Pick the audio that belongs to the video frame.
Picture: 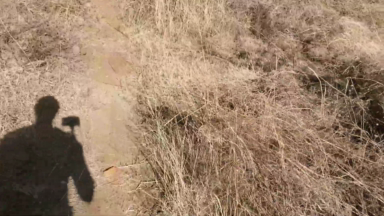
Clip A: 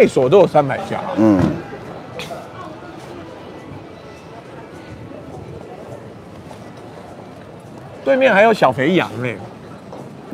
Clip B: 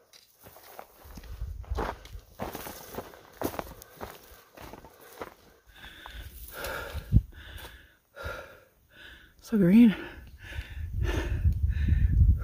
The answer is B